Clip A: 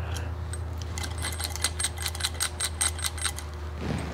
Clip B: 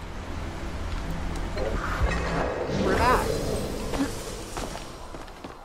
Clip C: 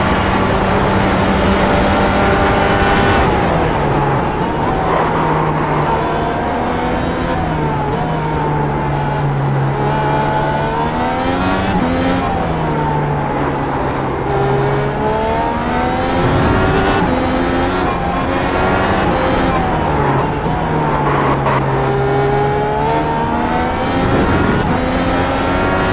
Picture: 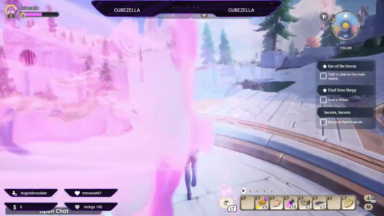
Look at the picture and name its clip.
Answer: B